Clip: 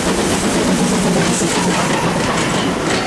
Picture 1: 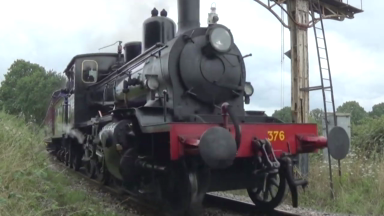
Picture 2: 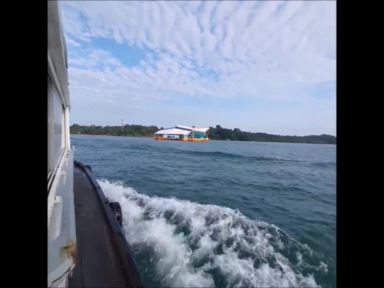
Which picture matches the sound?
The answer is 1